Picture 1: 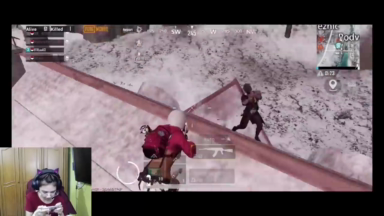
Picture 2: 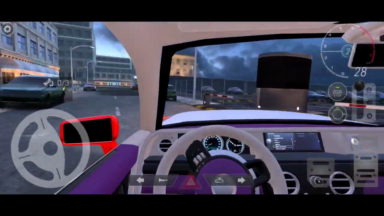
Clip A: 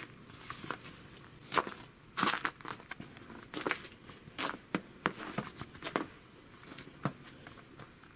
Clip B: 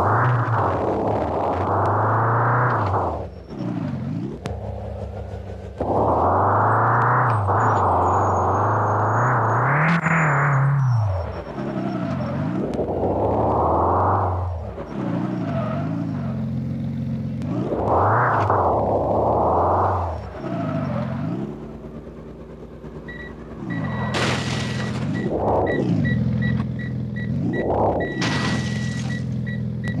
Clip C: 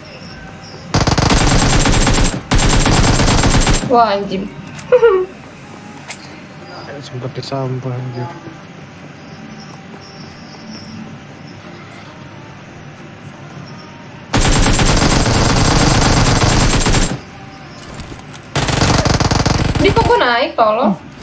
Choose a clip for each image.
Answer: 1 C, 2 B